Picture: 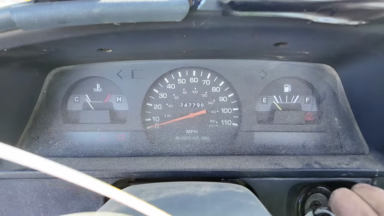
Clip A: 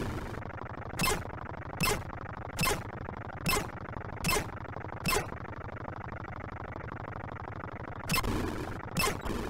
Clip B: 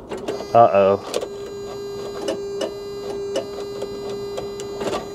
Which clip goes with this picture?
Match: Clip B